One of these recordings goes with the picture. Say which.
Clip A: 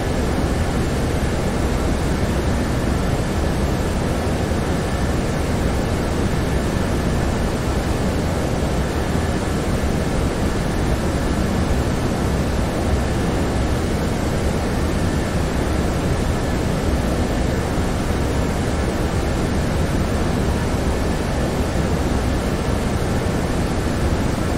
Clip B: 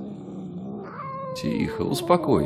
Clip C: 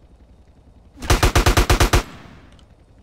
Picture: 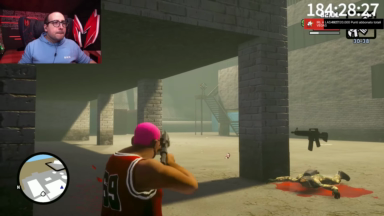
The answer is C